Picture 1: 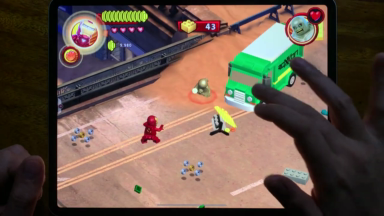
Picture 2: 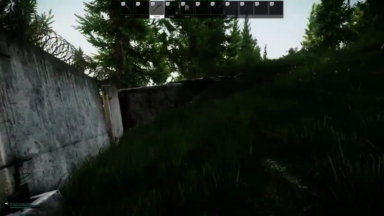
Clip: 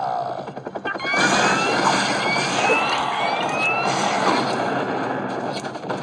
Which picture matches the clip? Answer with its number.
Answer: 1